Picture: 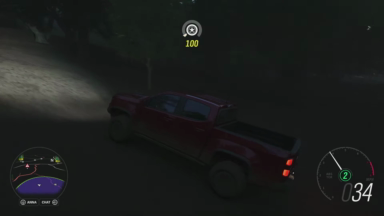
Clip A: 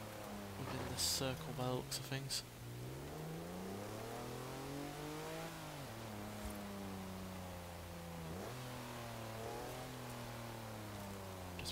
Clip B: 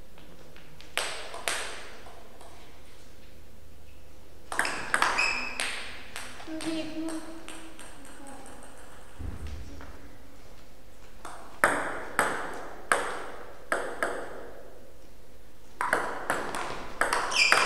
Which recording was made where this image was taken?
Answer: A